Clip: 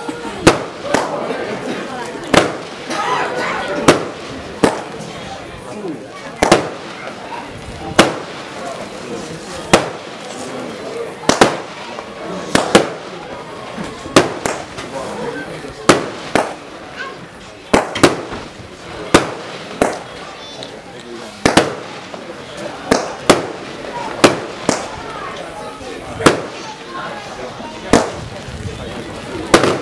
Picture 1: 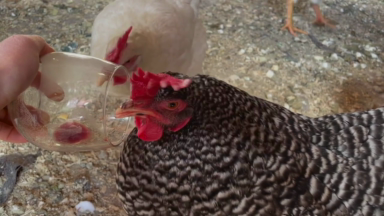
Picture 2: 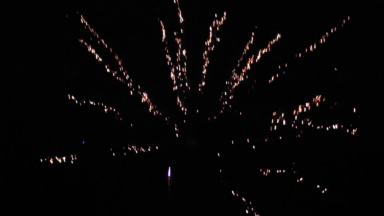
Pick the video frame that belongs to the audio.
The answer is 2